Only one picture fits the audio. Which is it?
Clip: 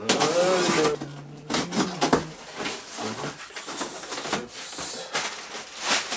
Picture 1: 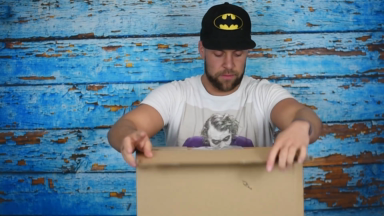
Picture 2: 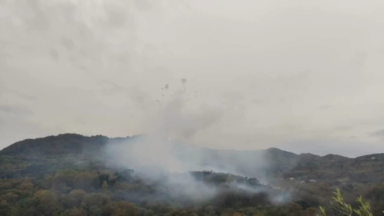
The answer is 1